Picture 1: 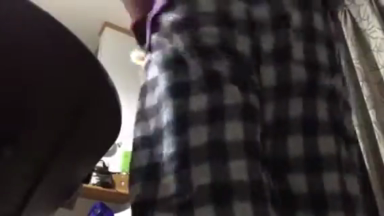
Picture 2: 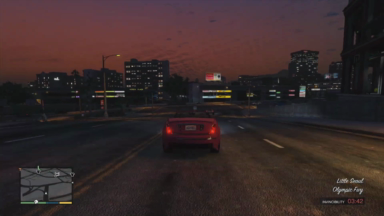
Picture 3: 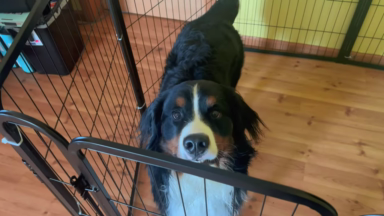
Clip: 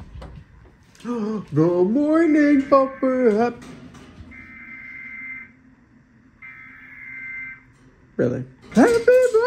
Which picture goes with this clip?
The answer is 3